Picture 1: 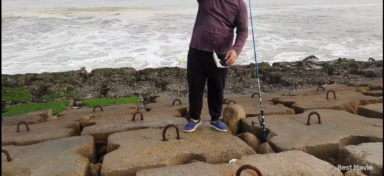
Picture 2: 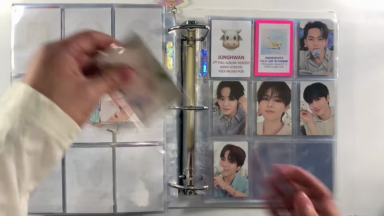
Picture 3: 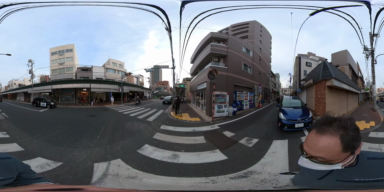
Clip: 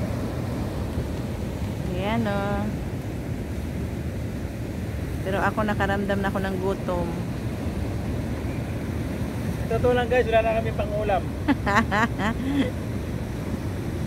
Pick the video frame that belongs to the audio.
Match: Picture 1